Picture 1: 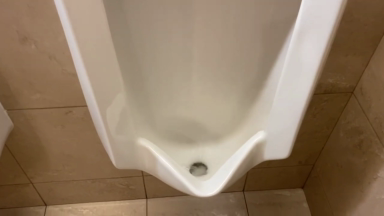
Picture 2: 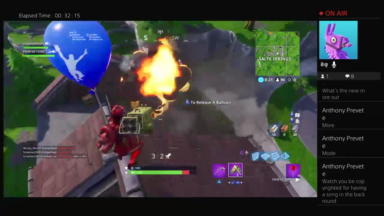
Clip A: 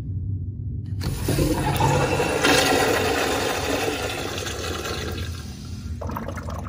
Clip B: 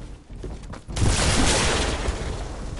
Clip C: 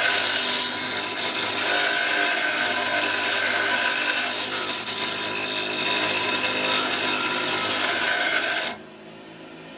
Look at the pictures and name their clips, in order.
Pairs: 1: A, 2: B